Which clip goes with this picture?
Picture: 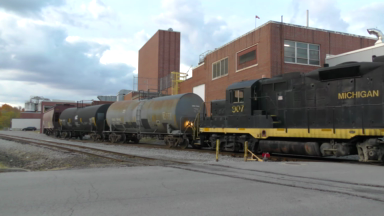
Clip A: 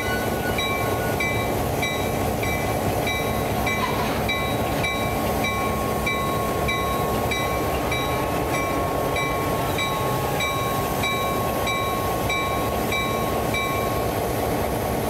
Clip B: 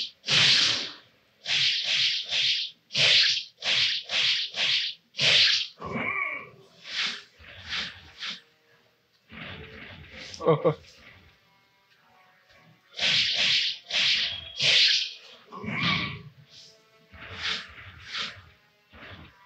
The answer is A